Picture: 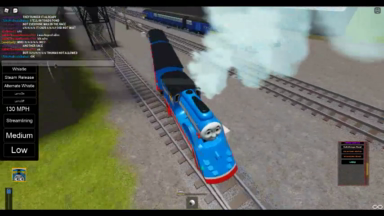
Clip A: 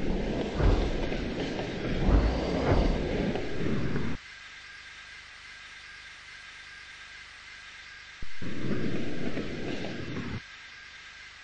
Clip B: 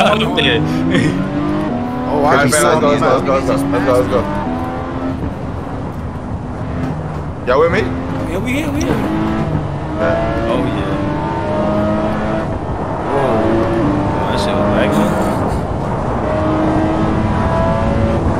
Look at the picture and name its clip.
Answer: A